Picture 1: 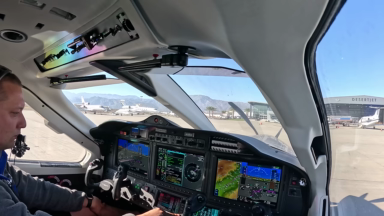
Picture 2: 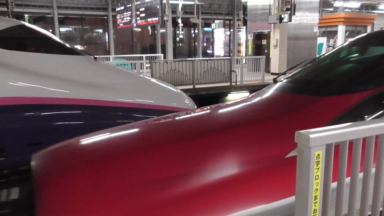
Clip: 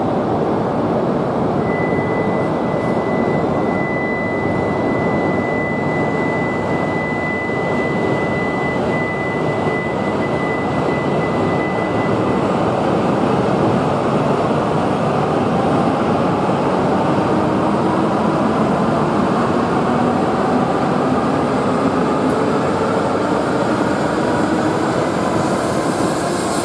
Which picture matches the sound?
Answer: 2